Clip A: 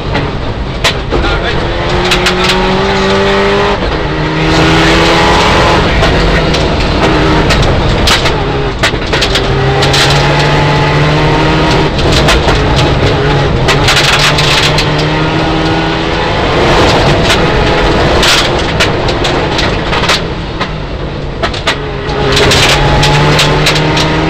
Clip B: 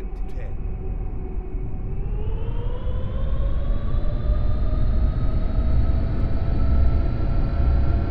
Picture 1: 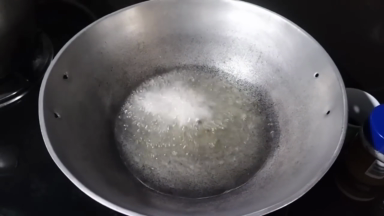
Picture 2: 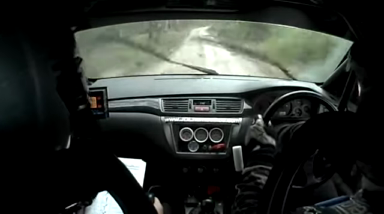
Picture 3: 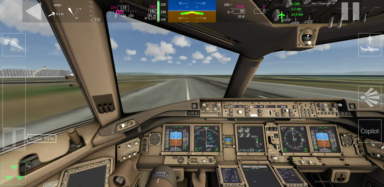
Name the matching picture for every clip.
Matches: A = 2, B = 3